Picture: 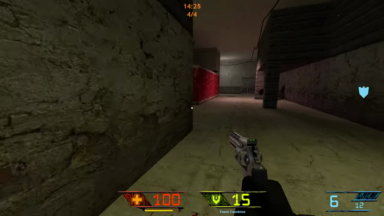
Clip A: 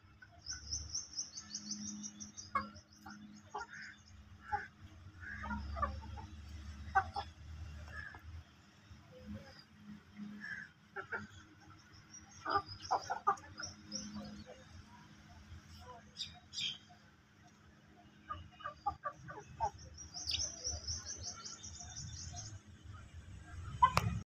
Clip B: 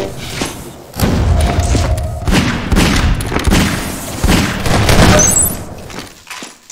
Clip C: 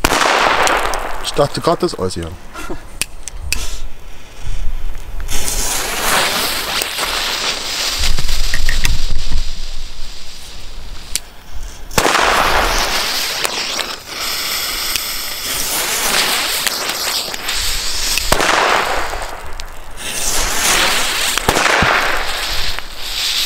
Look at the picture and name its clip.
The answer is B